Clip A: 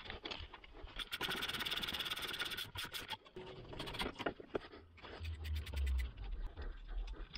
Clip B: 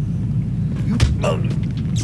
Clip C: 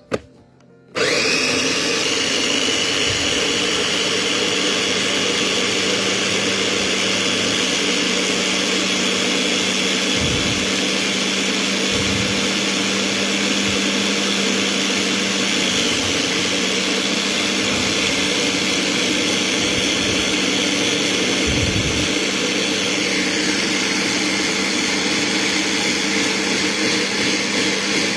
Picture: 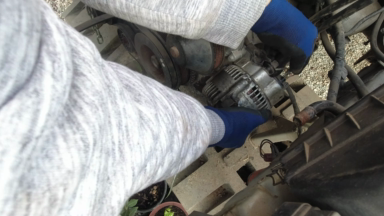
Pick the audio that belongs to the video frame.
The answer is A